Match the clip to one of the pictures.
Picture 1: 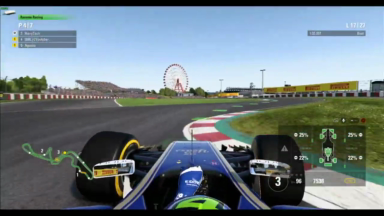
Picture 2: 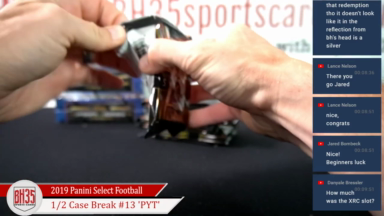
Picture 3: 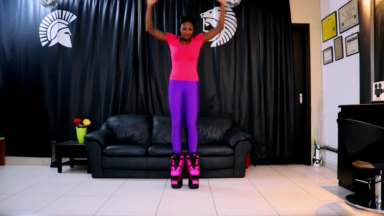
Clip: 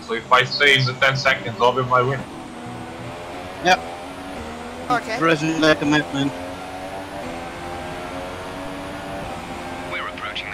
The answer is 1